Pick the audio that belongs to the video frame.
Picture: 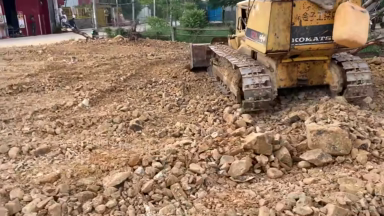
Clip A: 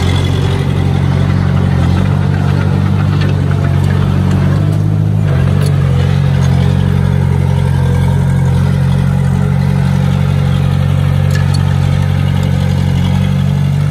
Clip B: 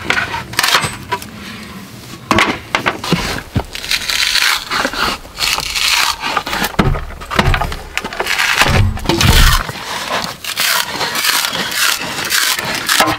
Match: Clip A